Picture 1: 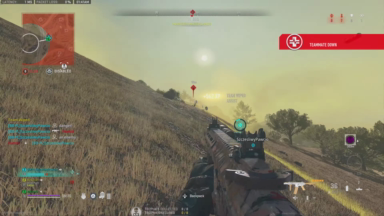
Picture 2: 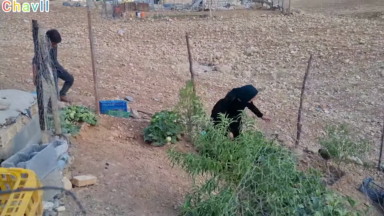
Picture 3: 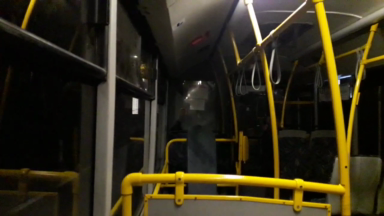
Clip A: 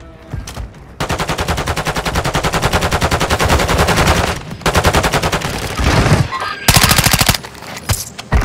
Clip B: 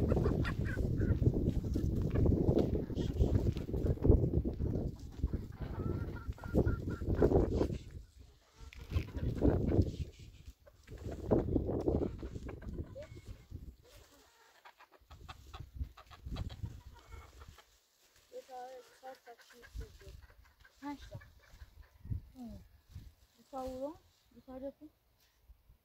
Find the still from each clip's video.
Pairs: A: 1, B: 2